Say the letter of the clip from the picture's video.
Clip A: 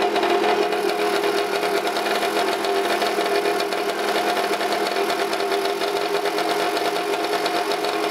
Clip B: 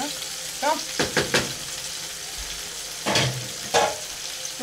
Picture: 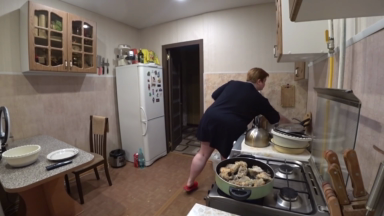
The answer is B